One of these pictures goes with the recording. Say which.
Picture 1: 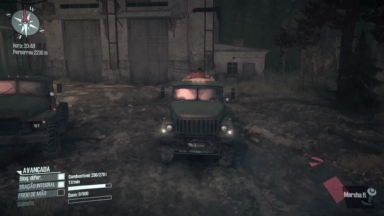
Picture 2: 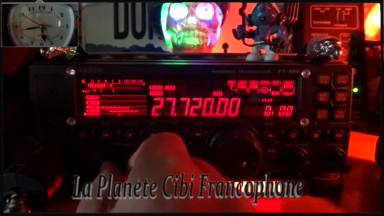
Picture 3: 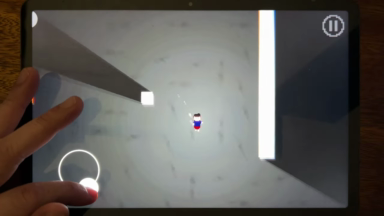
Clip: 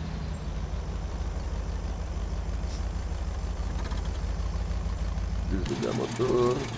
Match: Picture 1